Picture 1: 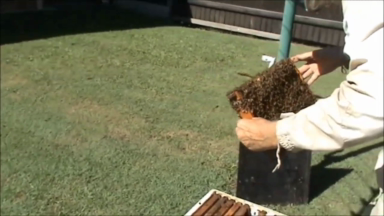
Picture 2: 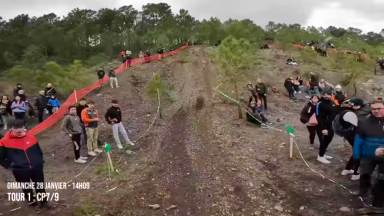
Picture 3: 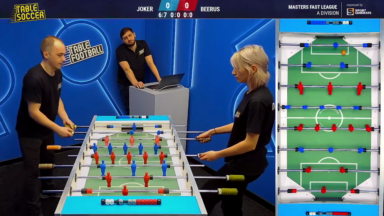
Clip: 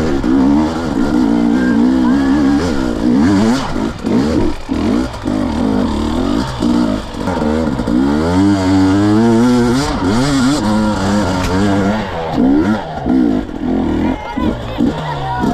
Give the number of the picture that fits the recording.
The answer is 2